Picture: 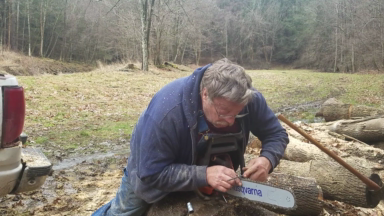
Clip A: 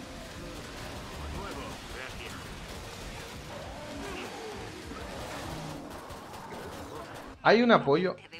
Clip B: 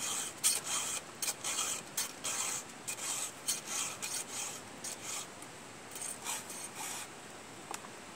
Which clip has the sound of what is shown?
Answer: B